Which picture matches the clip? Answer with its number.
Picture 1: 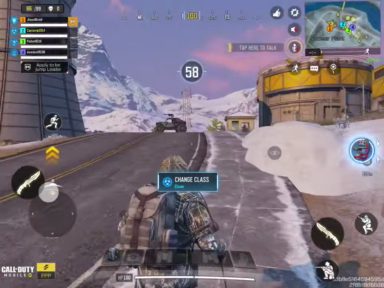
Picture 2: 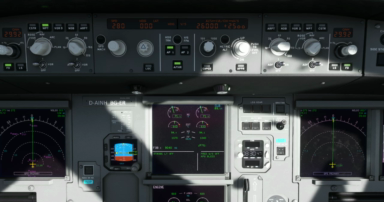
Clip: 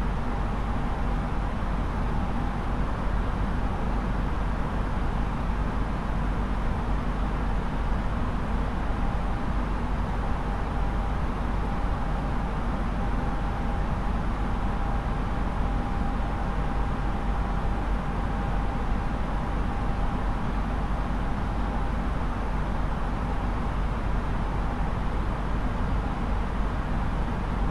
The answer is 2